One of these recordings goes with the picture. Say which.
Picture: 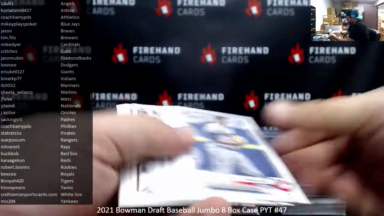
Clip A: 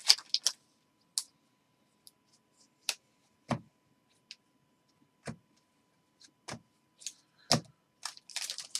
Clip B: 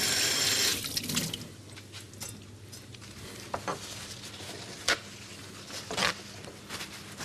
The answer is A